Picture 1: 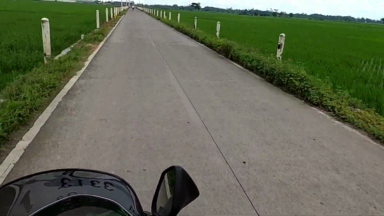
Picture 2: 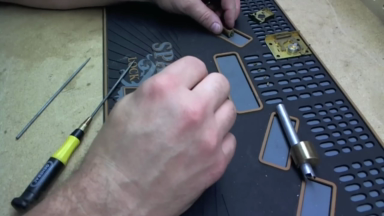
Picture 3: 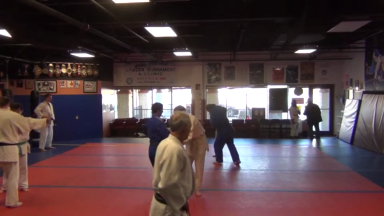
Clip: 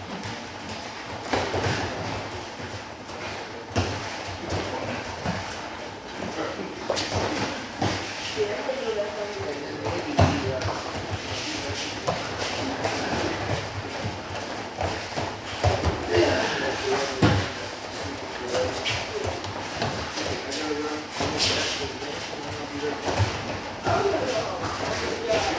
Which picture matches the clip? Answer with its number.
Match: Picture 3